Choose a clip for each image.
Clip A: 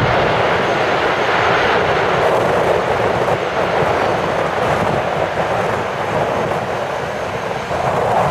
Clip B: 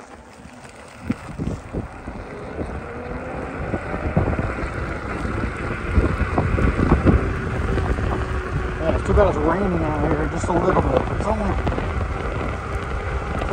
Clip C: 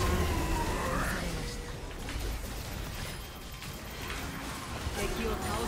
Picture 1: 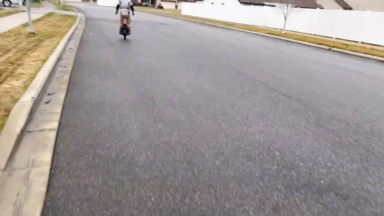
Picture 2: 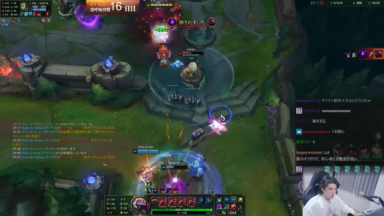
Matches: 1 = B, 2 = C